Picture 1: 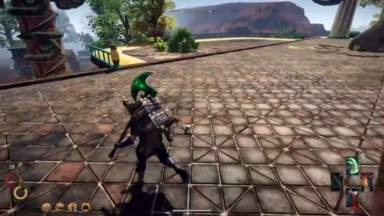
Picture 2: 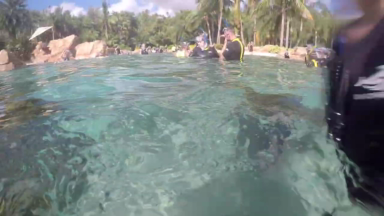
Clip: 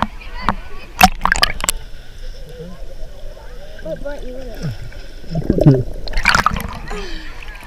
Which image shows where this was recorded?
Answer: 2